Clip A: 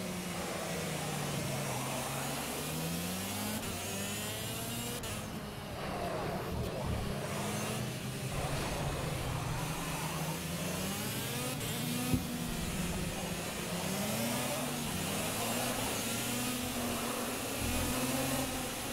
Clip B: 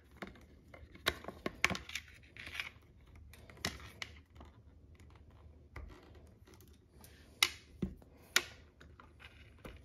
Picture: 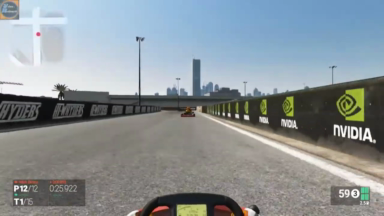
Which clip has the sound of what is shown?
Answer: A